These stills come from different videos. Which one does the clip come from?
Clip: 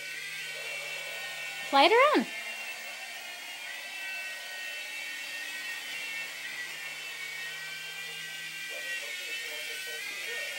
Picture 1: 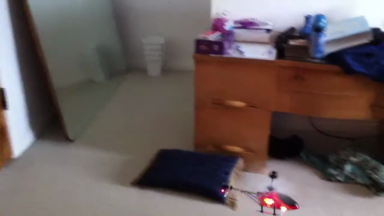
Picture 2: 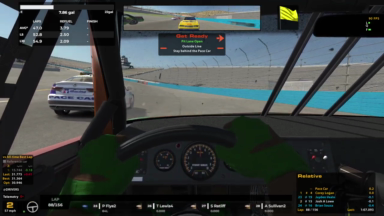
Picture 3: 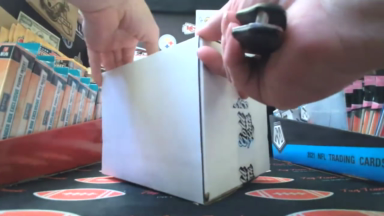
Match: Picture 1